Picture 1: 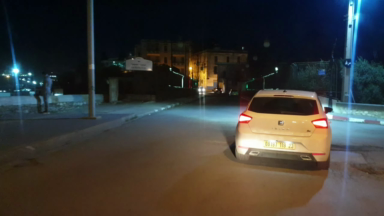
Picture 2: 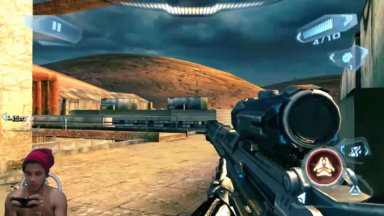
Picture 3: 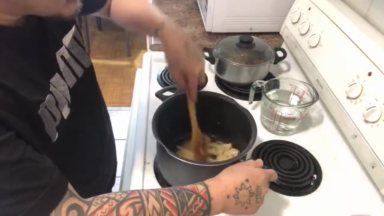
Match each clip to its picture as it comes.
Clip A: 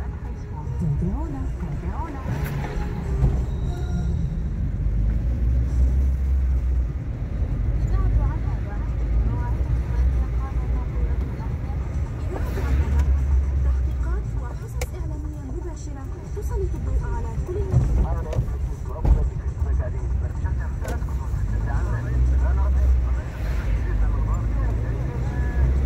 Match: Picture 1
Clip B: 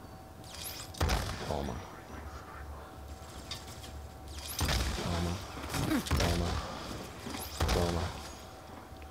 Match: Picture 2